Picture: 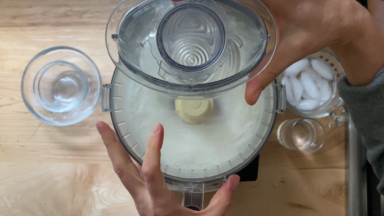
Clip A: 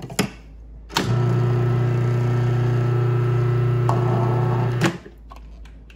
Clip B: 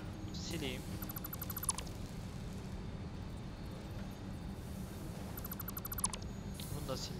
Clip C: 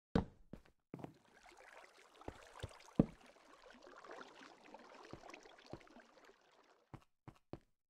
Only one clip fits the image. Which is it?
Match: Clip A